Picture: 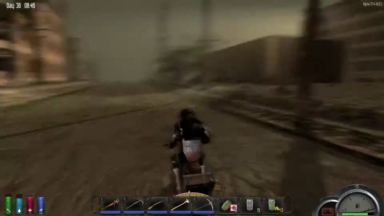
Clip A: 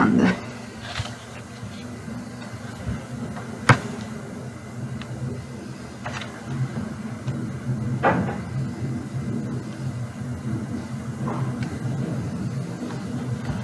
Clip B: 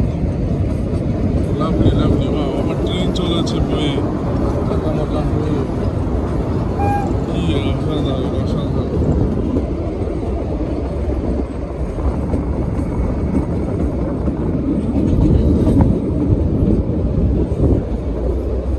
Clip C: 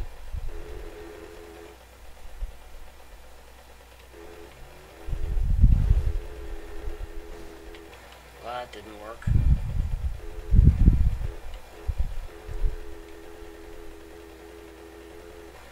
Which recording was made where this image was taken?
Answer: C